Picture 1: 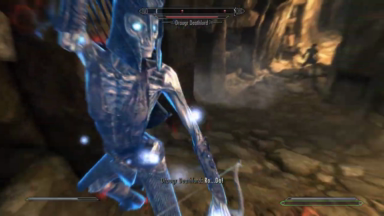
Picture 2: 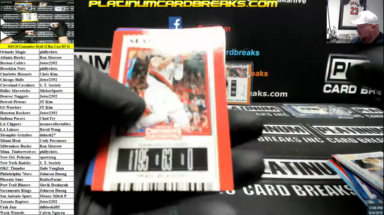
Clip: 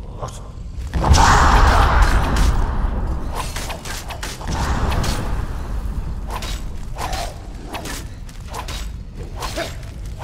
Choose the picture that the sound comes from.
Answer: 1